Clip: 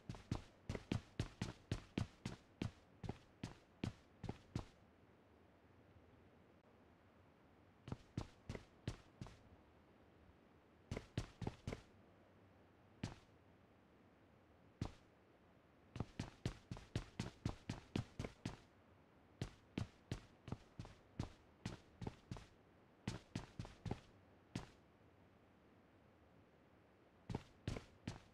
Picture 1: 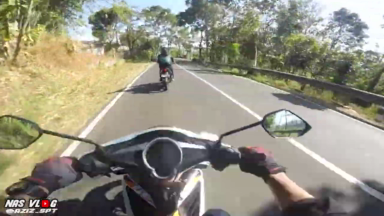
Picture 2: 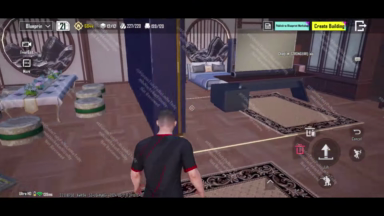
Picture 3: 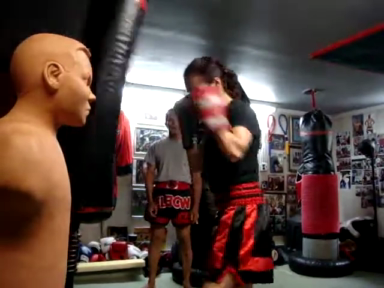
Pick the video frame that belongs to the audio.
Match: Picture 2